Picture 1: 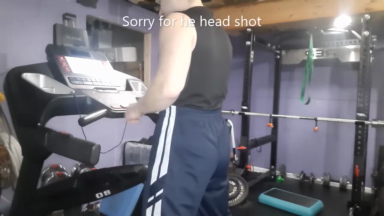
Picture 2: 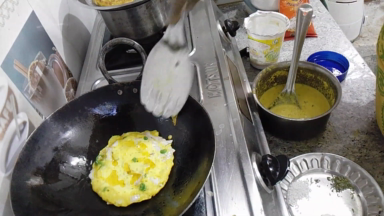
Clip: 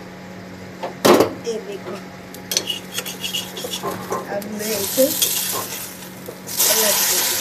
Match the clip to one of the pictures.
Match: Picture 2